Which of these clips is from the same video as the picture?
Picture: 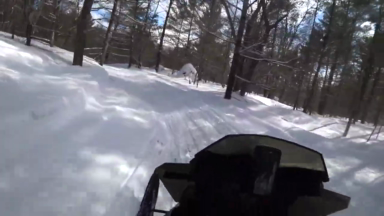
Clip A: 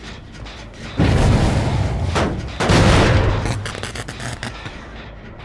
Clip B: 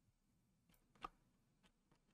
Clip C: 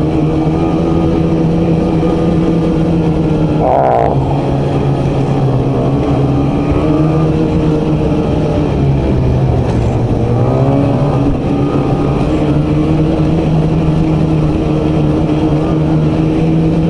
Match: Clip C